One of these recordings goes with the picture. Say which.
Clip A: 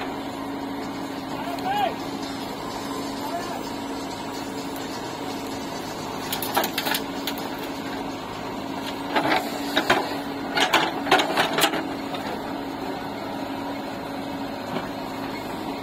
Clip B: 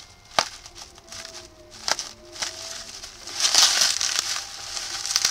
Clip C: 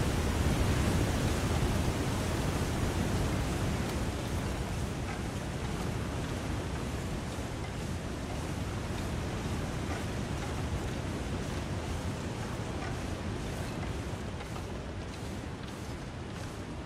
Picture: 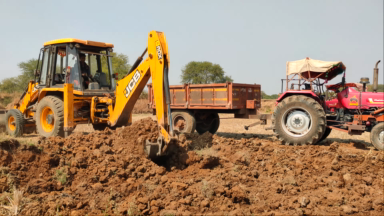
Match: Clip A